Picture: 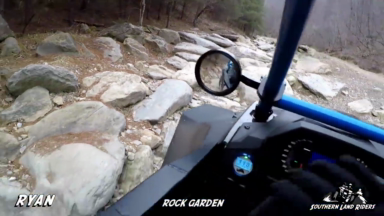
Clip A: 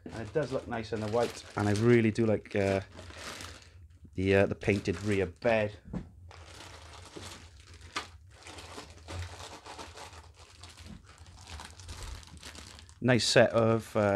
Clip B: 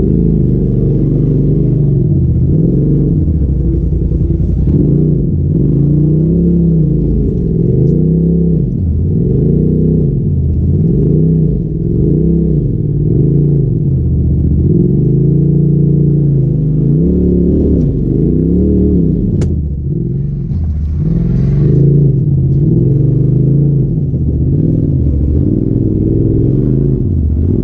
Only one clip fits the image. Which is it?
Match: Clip B